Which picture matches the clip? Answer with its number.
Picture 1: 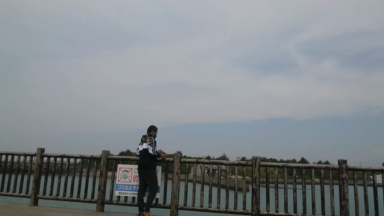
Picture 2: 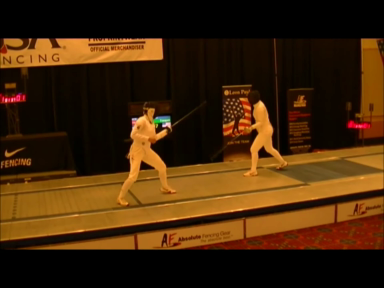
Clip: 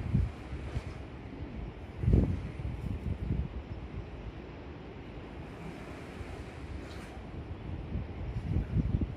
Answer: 1